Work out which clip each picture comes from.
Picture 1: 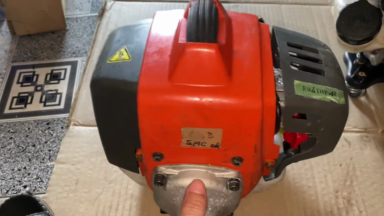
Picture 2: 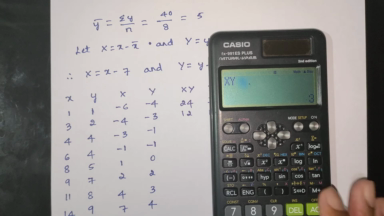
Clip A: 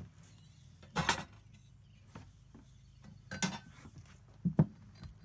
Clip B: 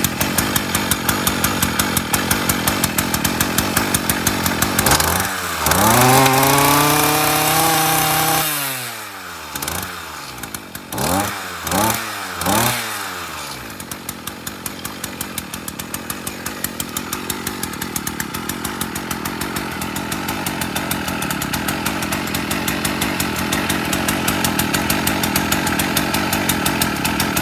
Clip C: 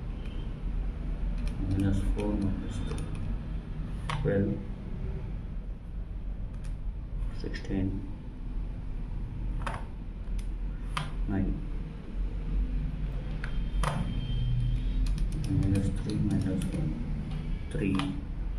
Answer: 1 B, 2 C